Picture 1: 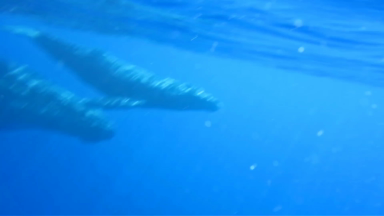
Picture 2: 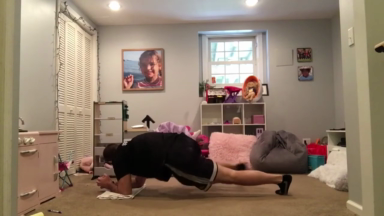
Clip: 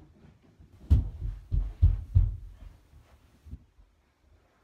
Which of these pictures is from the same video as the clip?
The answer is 2